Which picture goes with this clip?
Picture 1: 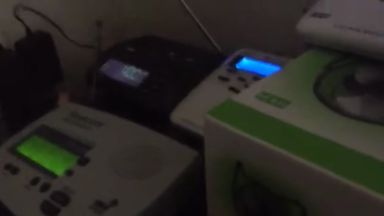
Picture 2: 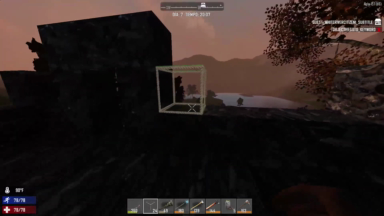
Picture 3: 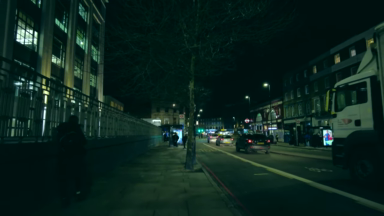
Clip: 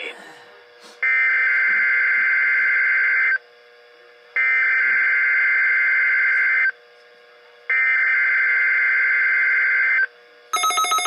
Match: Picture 1